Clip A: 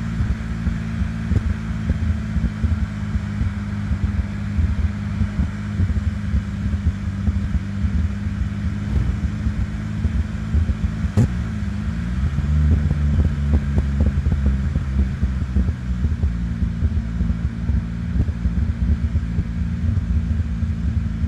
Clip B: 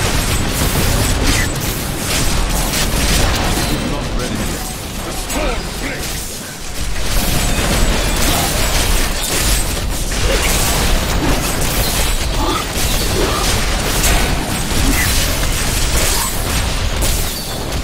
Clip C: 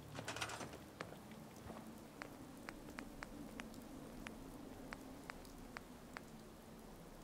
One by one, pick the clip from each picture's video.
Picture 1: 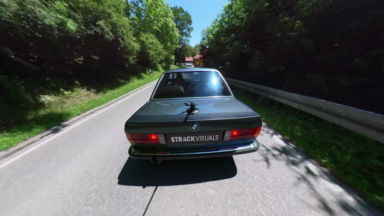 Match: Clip A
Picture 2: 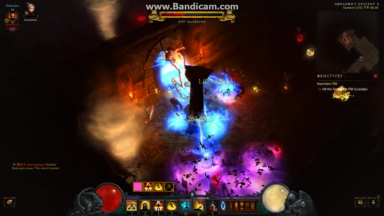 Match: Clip B